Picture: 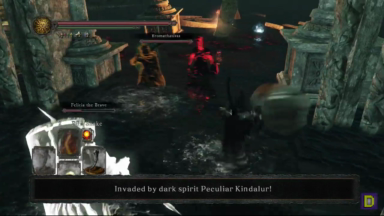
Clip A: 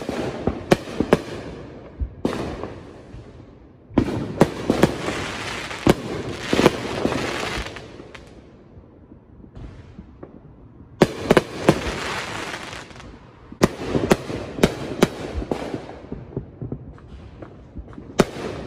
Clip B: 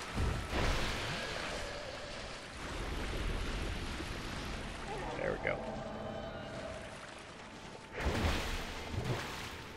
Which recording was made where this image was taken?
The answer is B